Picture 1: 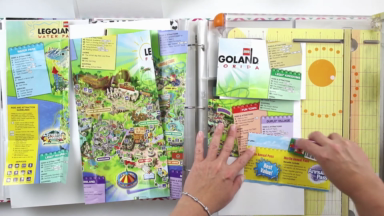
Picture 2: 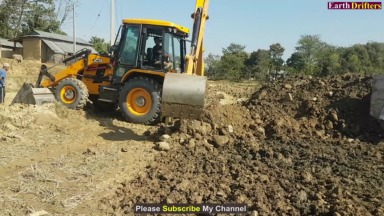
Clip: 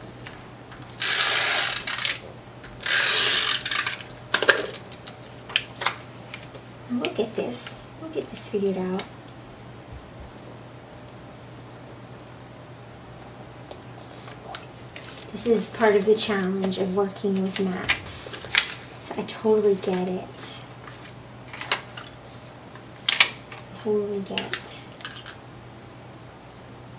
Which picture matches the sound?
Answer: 1